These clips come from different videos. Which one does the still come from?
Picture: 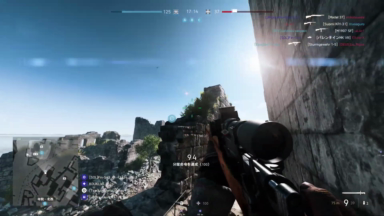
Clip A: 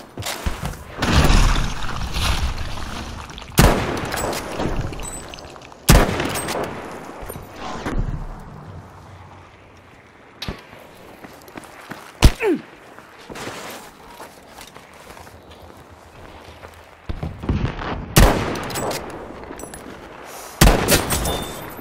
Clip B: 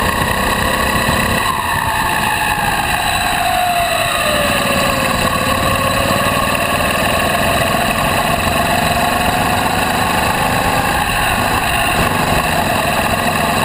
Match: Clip A